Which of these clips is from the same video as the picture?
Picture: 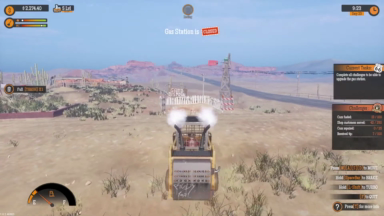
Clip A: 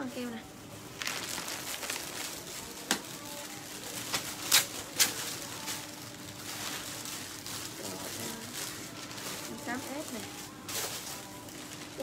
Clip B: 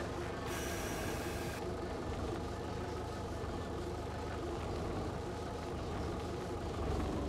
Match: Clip B